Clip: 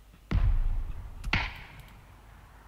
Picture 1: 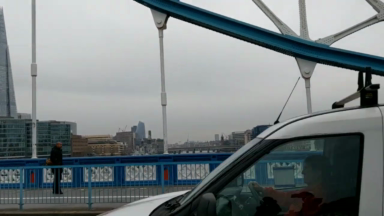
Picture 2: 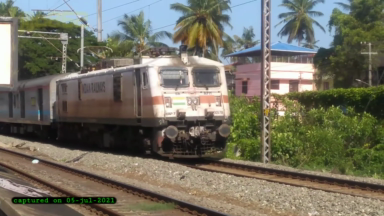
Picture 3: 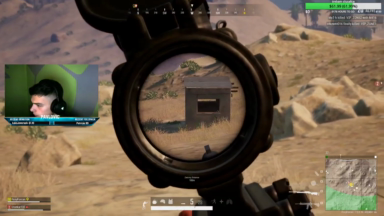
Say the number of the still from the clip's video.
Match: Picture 3